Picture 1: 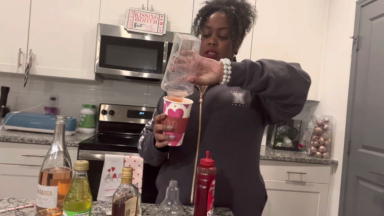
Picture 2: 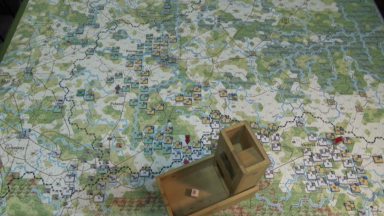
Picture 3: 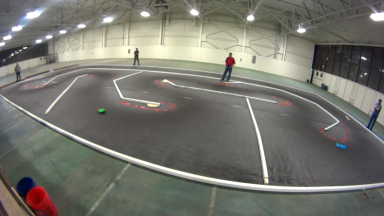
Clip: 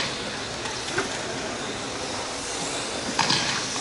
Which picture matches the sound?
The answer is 3